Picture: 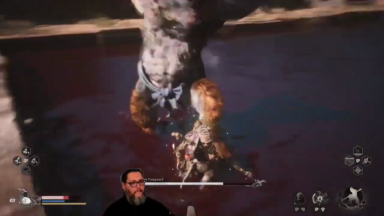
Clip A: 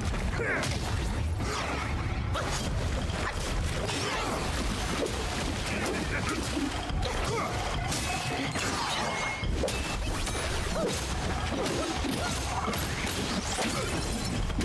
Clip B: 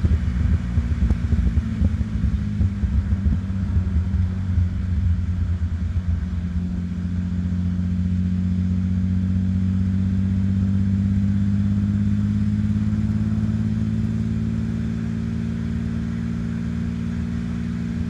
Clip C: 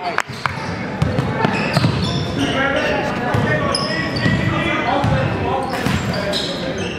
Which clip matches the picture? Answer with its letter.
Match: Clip A